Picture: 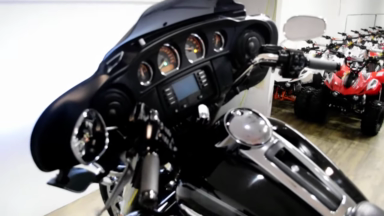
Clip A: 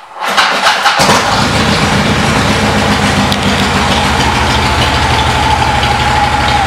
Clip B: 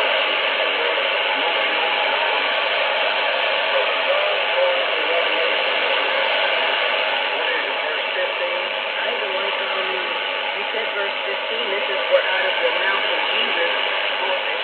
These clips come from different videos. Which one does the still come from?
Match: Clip A